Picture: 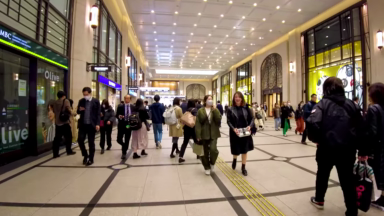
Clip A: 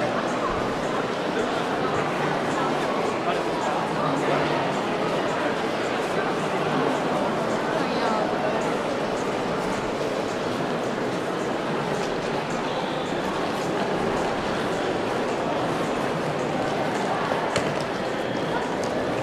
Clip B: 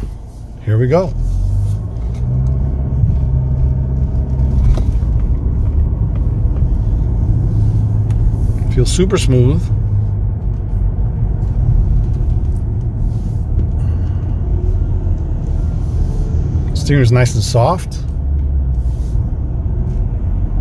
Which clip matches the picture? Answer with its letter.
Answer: A